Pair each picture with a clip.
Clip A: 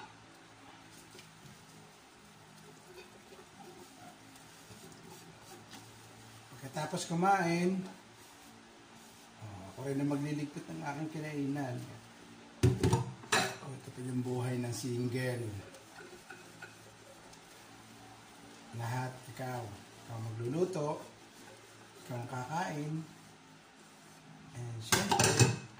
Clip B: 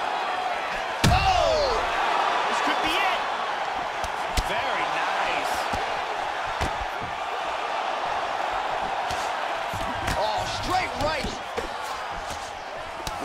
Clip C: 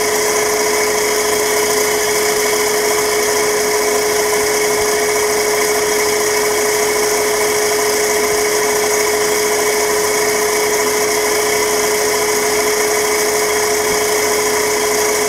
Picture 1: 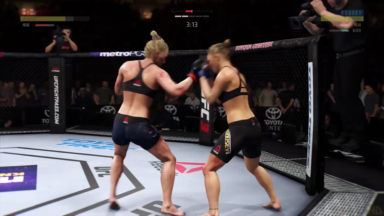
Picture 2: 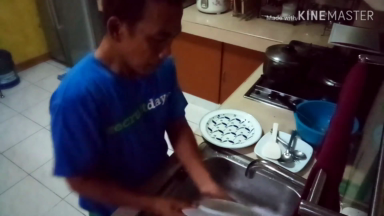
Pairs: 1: B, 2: A